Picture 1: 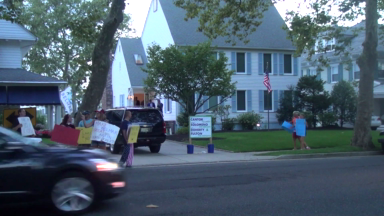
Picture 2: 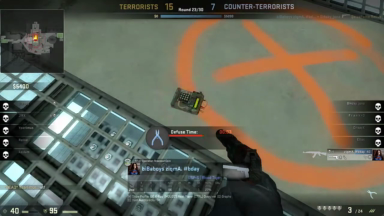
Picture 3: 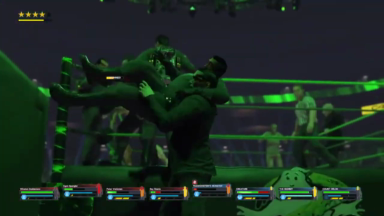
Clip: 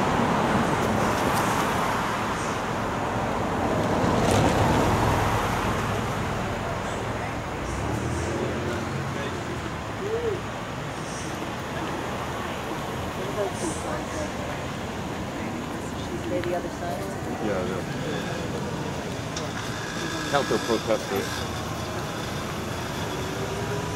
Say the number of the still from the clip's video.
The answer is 1